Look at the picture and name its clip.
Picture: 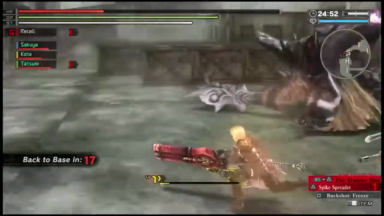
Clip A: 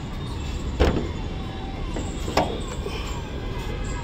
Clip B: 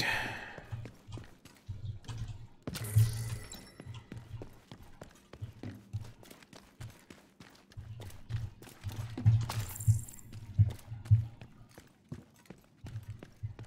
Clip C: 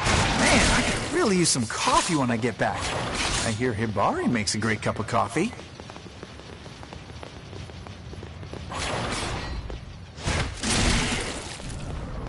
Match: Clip C